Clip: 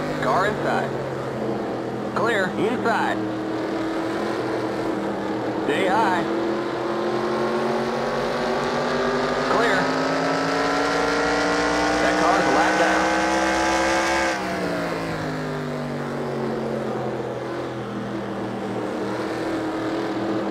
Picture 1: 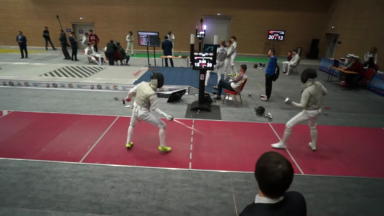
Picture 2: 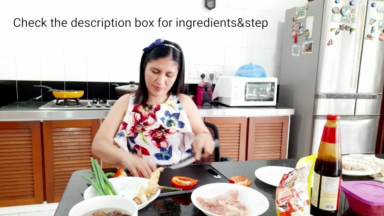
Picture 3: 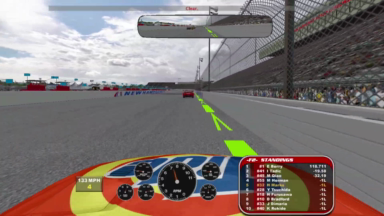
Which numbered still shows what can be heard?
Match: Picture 3